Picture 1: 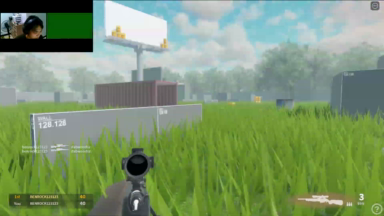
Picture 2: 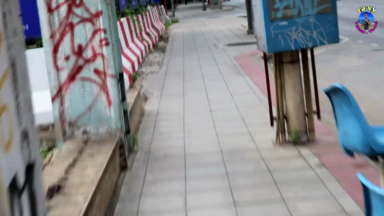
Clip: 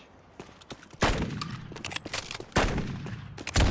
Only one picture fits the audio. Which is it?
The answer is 1